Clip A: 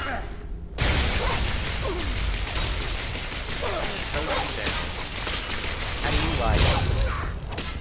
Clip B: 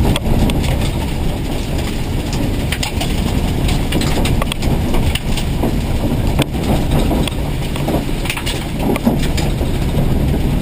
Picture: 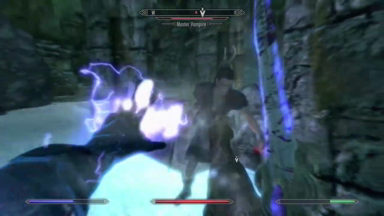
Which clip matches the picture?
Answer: A